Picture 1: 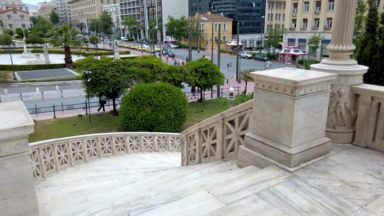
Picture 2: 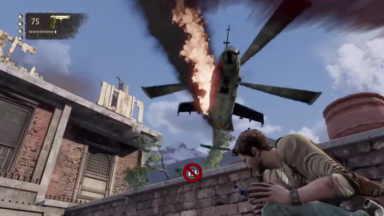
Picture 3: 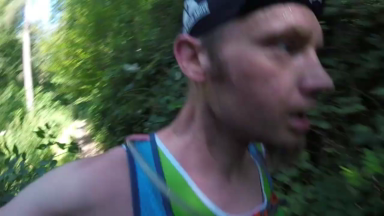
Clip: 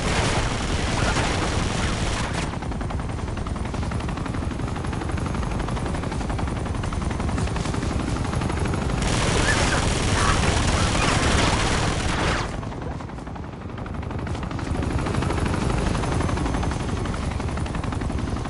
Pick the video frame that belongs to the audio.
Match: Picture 2